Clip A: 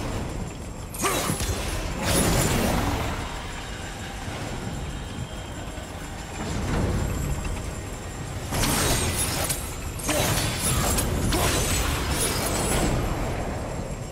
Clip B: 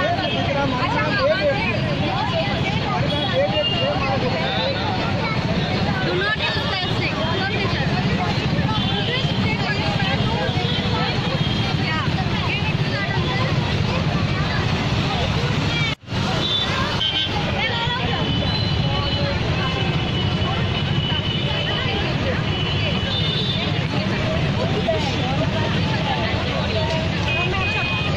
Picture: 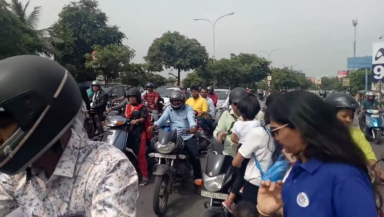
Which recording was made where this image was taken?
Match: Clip B